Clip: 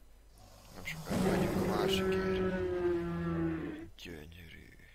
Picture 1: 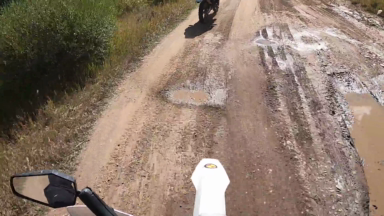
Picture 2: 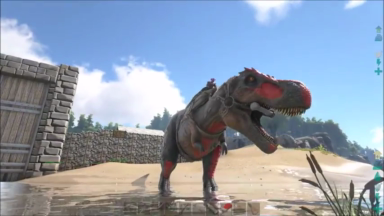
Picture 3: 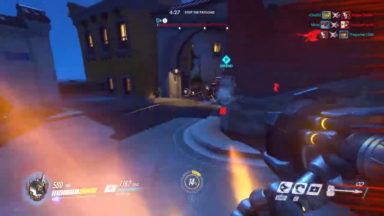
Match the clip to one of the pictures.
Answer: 2